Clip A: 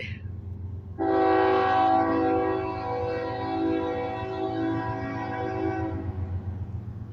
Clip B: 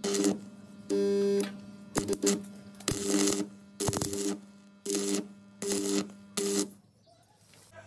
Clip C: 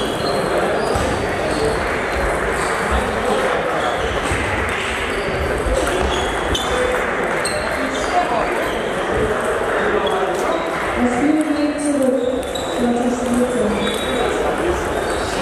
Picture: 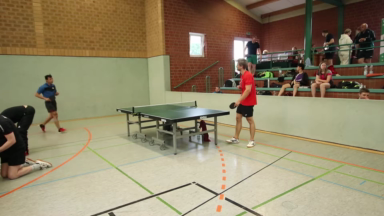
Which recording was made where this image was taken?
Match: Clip C